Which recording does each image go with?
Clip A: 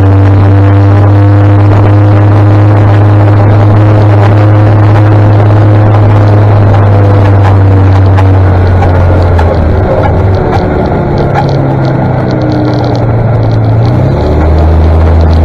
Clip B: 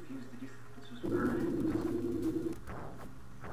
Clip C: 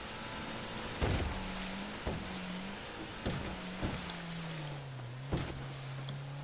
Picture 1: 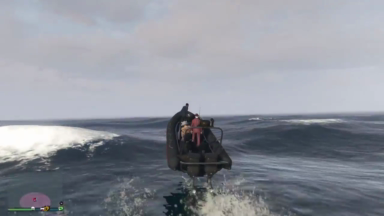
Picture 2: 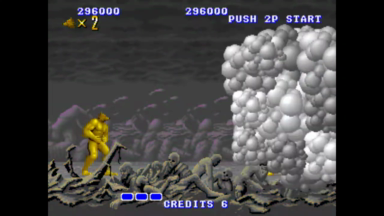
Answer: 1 C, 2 B